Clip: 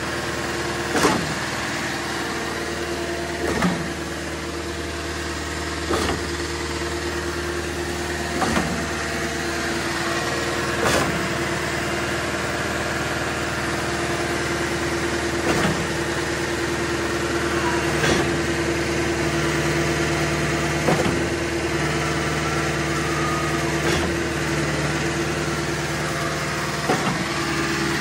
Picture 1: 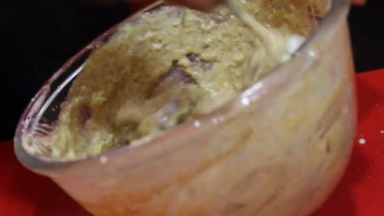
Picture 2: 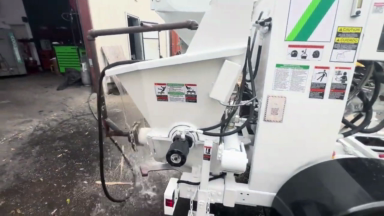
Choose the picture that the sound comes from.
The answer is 2